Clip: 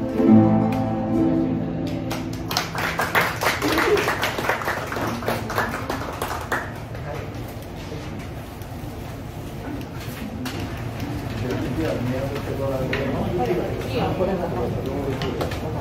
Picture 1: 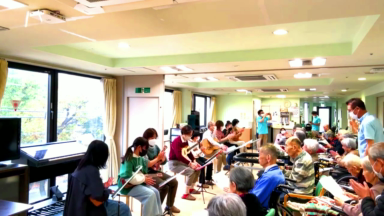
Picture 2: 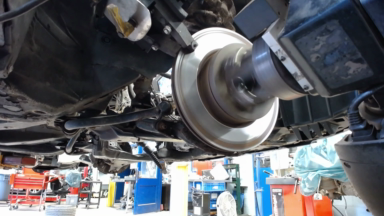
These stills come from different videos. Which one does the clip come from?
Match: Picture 1